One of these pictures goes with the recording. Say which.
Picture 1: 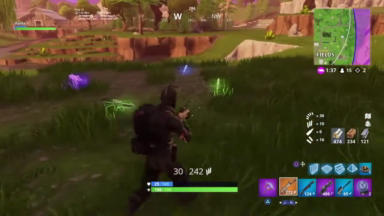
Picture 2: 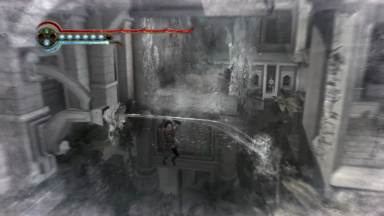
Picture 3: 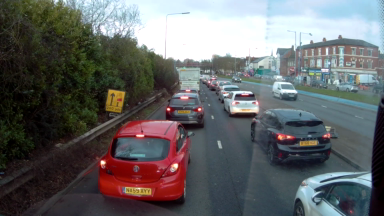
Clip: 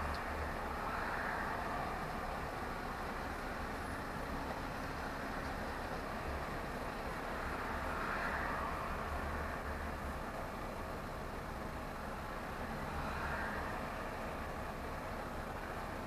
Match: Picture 3